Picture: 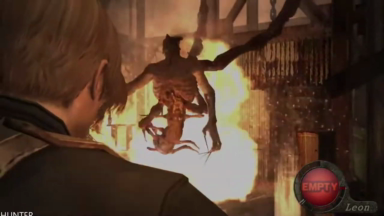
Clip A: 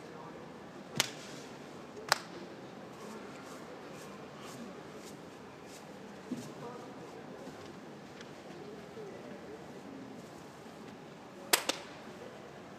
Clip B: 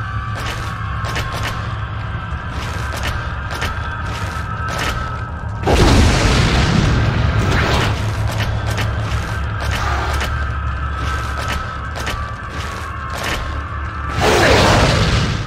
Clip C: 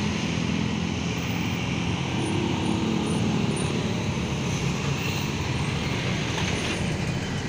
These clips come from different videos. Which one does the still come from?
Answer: B